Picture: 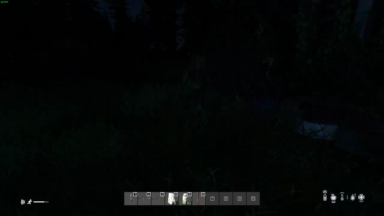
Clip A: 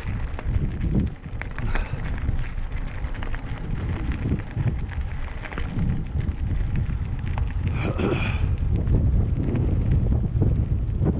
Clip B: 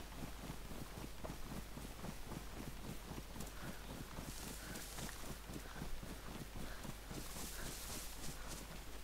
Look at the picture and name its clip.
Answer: B